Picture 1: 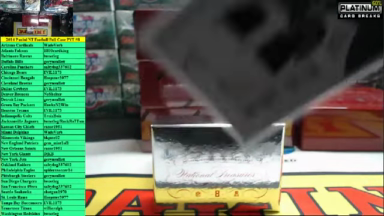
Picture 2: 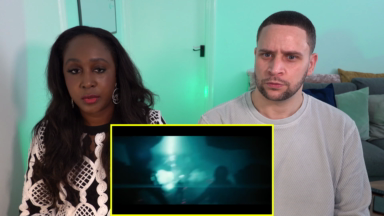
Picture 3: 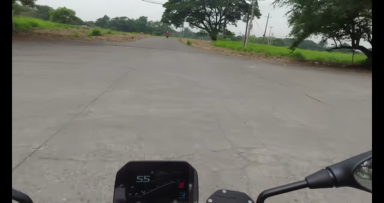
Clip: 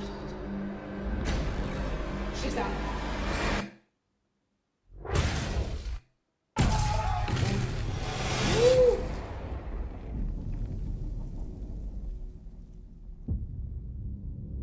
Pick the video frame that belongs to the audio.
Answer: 2